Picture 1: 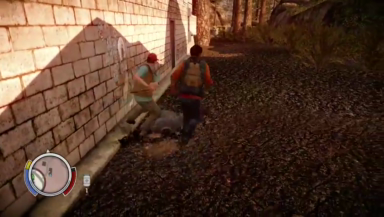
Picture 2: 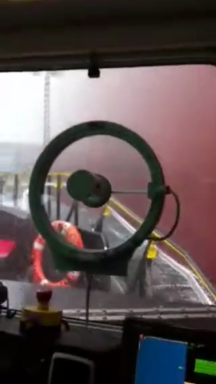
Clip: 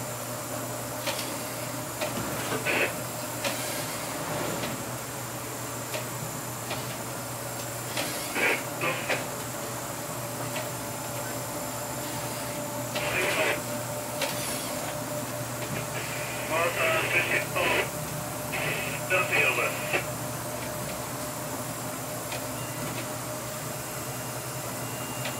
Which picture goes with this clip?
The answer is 2